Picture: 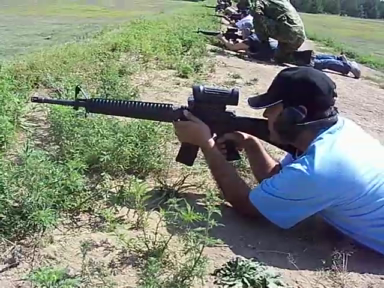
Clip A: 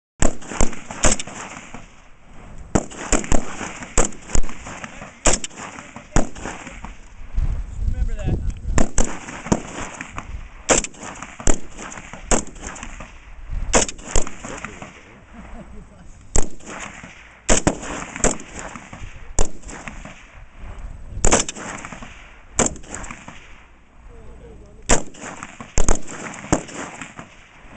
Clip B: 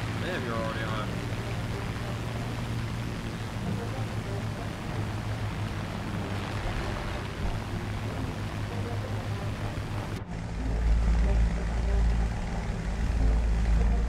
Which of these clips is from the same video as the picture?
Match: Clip A